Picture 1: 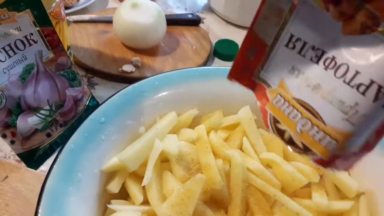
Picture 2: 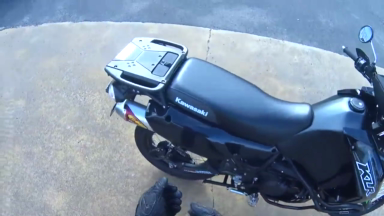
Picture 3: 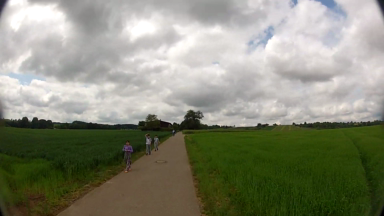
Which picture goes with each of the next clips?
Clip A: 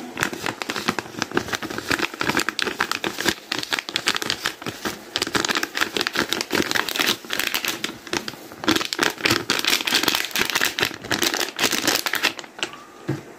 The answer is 1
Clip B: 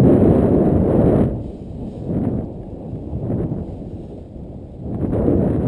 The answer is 3